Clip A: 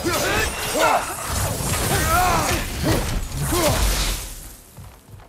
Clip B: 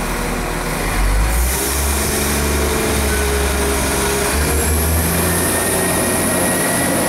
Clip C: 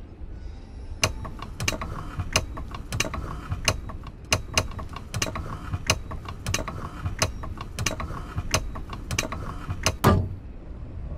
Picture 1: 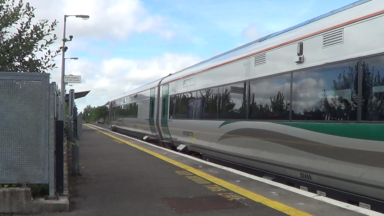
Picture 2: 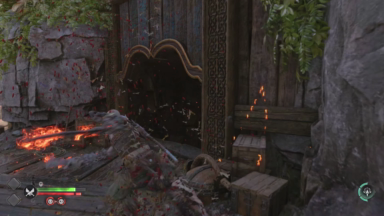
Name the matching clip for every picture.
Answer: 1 B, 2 A